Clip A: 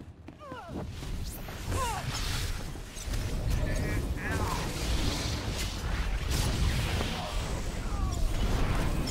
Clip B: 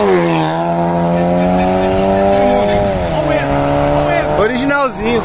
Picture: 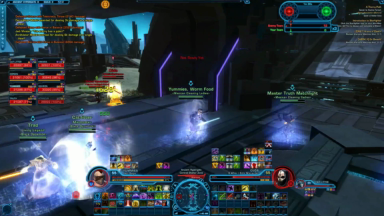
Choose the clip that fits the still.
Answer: A